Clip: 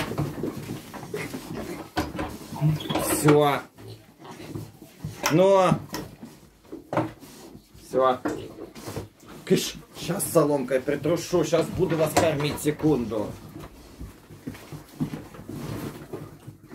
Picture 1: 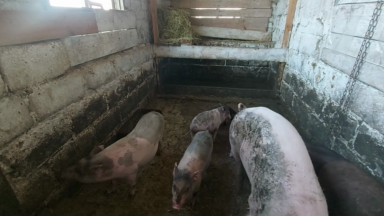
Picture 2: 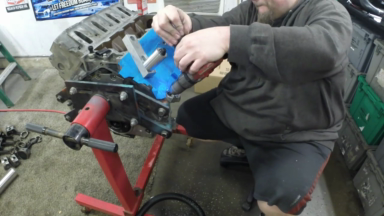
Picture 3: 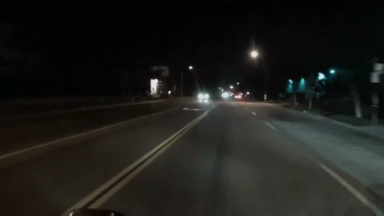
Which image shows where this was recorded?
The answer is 1